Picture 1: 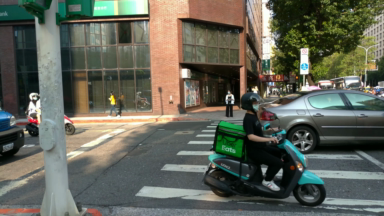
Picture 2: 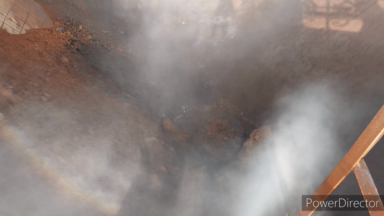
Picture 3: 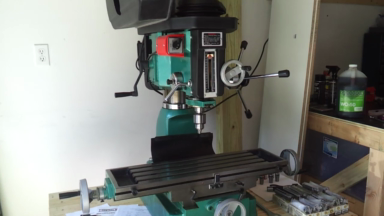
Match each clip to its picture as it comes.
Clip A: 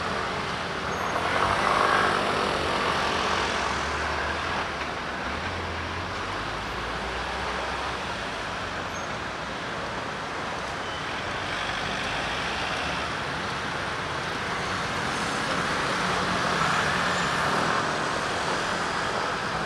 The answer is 1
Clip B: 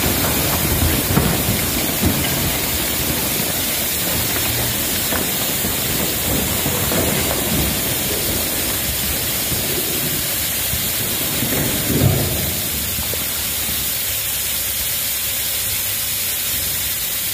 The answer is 2